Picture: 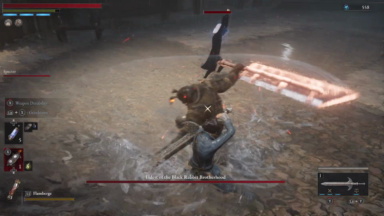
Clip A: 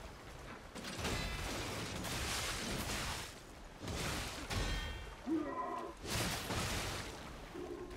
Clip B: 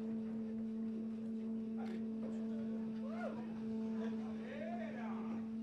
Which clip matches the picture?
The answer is A